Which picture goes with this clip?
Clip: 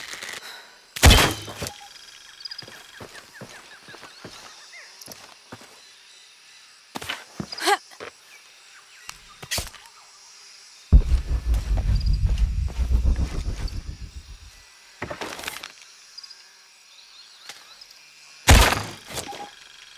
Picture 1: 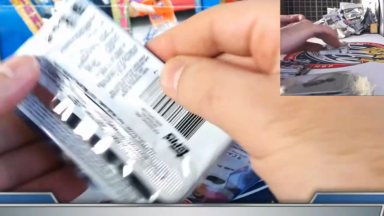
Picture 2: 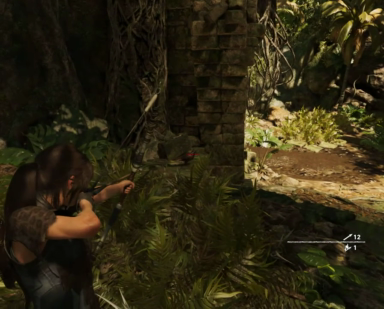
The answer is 2